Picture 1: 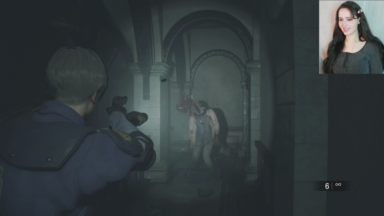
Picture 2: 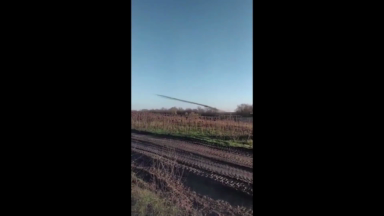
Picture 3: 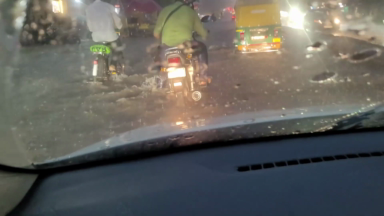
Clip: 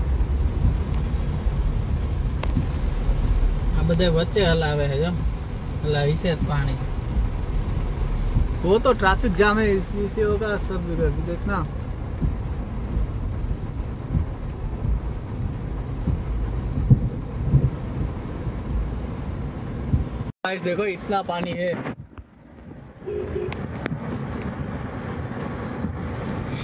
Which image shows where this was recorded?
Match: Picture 3